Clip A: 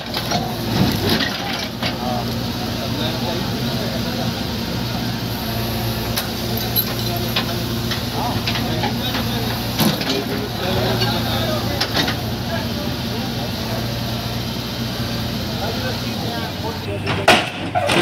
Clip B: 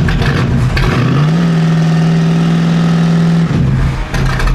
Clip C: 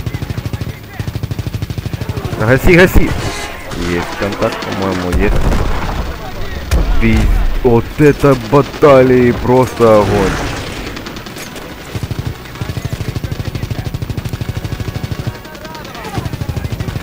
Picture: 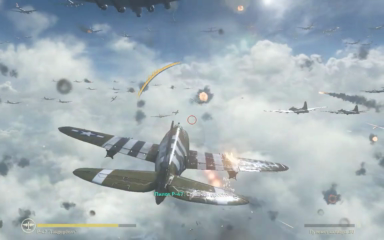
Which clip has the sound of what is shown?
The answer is C